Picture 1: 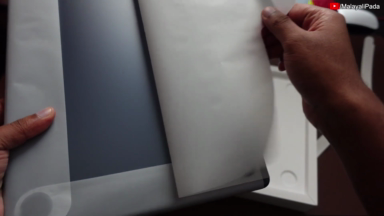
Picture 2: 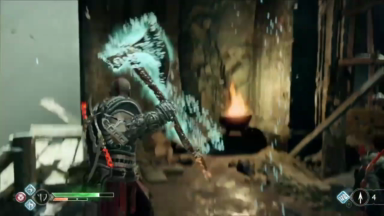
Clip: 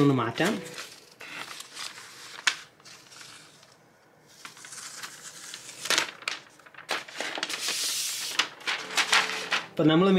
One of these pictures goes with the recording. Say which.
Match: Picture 1